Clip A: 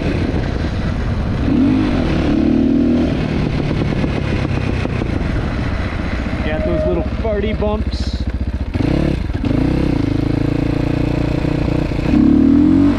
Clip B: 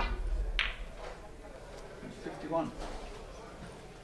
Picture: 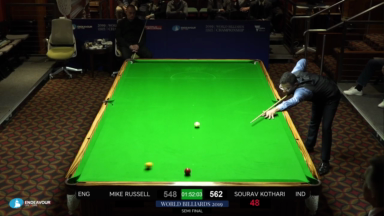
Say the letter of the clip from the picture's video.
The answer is B